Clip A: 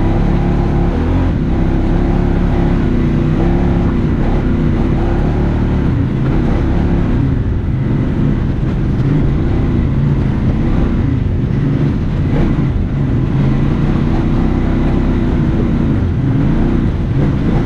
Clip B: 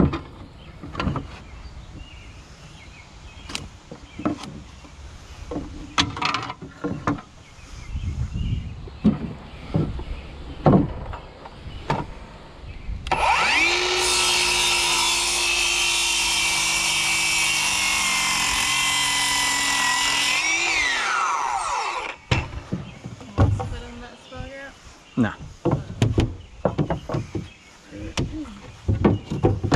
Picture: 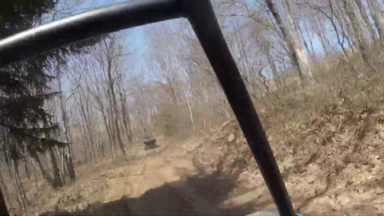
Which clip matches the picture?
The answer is A